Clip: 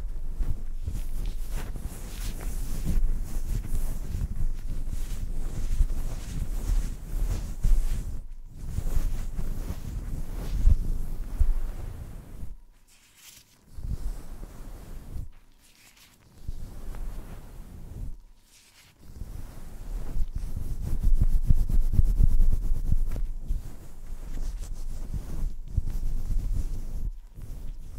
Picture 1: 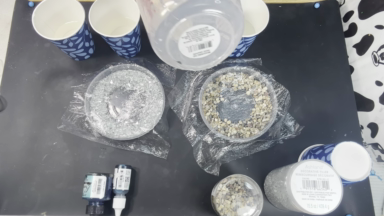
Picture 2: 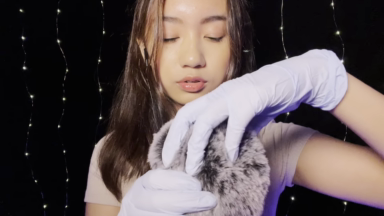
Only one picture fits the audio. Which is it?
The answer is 2